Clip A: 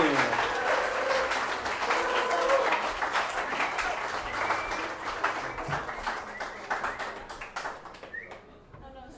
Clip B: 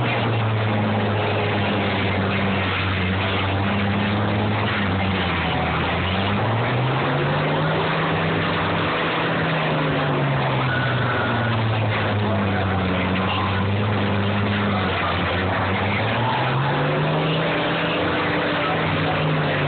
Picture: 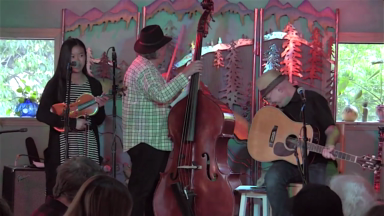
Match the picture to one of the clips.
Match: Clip A